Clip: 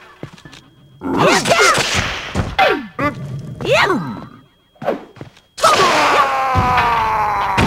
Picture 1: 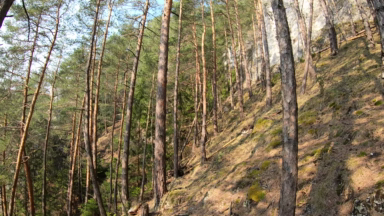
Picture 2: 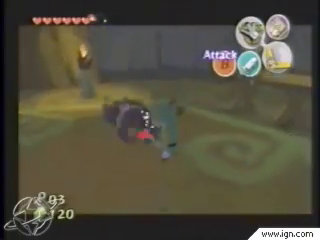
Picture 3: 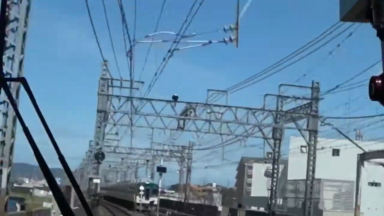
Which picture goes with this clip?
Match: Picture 2